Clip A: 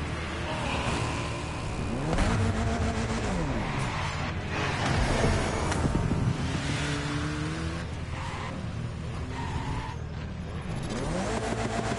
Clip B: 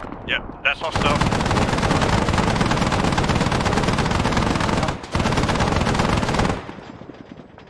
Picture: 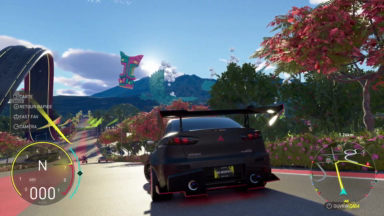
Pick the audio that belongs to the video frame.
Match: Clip A